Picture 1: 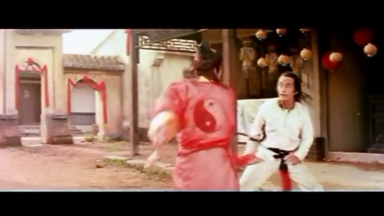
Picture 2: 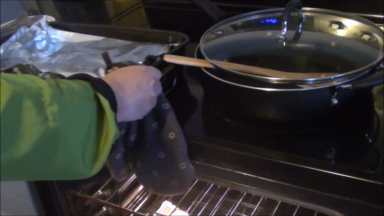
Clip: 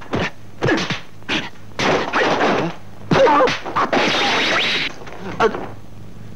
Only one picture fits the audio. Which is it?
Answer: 1